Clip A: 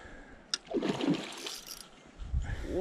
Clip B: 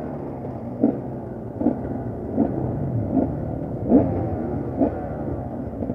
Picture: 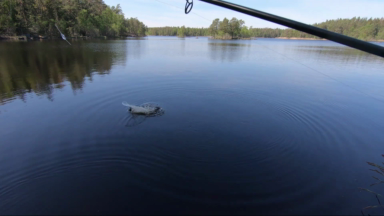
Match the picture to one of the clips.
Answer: A